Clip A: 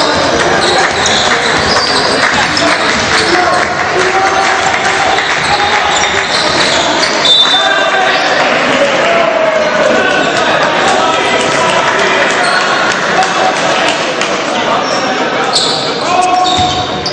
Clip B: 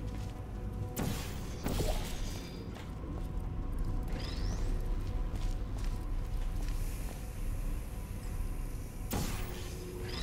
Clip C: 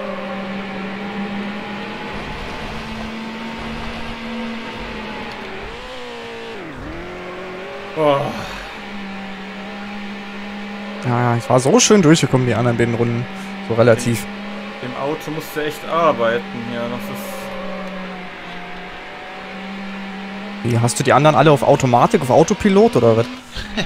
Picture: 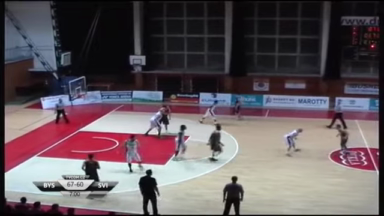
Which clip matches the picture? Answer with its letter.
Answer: A